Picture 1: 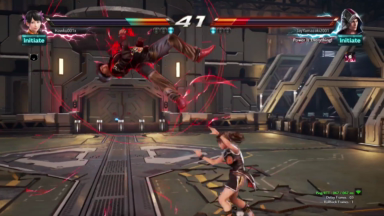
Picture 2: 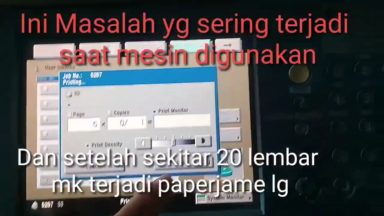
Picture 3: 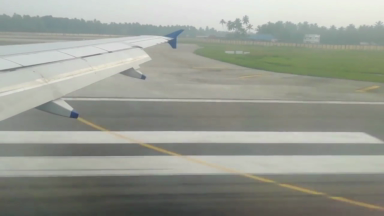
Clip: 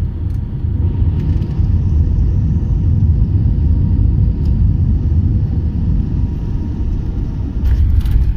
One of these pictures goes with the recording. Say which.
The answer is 3